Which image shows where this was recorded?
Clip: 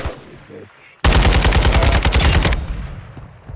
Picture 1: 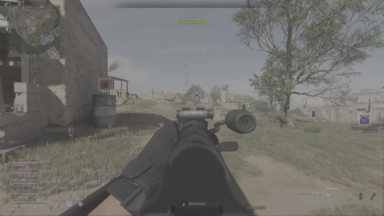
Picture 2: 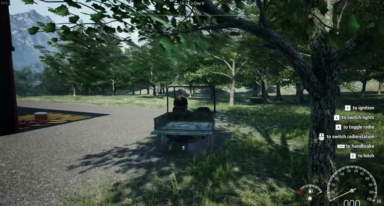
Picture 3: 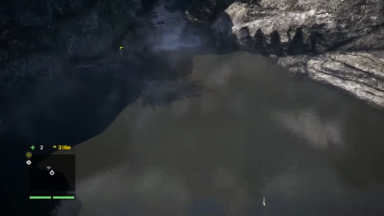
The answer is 1